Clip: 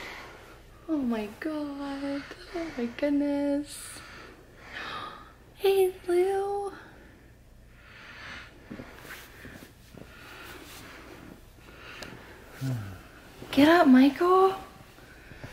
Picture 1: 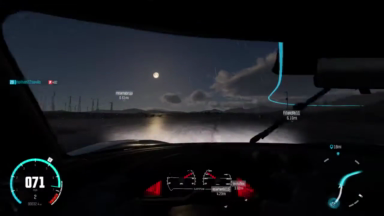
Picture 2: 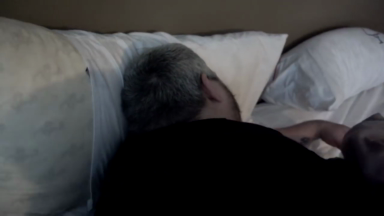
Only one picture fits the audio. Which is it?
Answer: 2